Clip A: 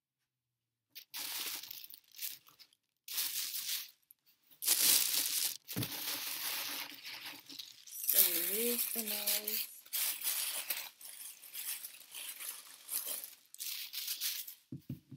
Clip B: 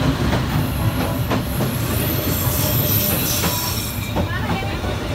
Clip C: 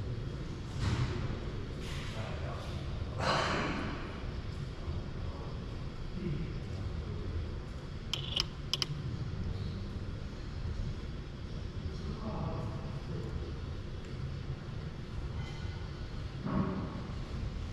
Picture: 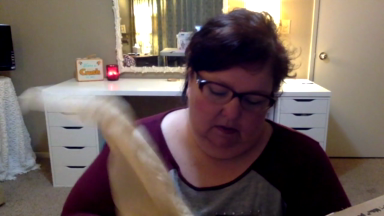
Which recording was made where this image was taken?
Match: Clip A